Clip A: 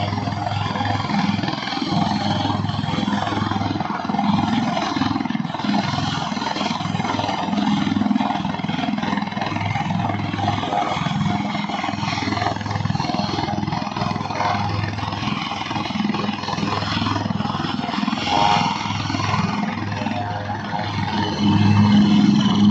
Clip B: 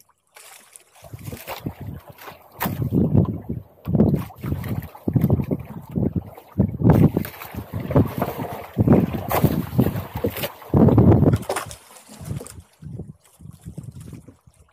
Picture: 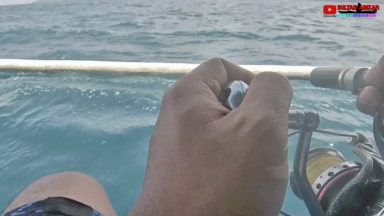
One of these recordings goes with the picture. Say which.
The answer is B